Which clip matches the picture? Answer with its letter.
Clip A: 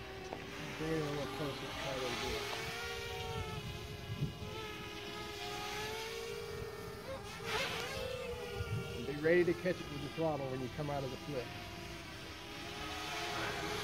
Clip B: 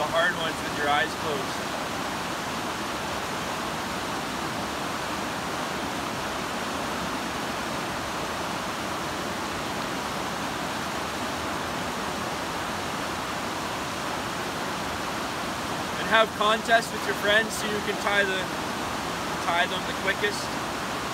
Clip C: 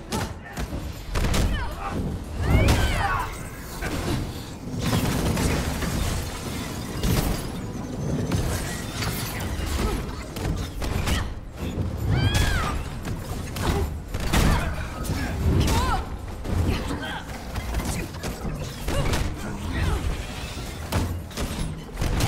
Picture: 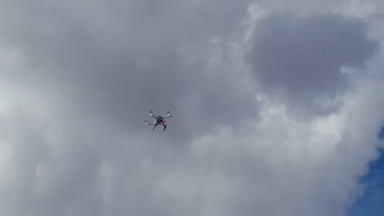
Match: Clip A